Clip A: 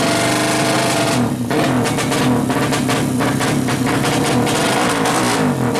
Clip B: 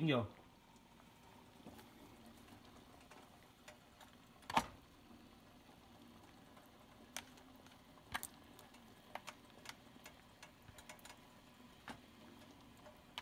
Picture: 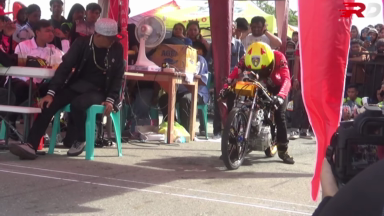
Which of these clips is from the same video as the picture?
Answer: A